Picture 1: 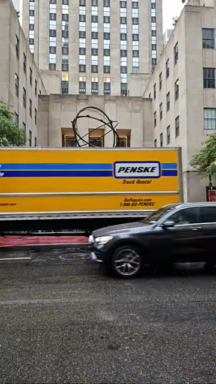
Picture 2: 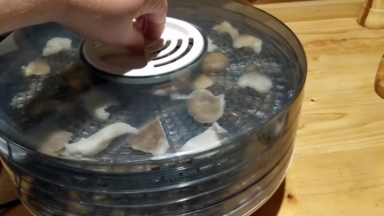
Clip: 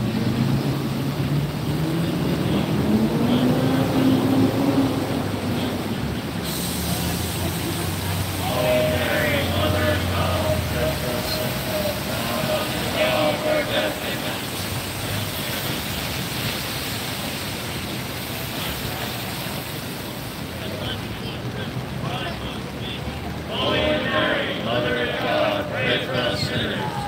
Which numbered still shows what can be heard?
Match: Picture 1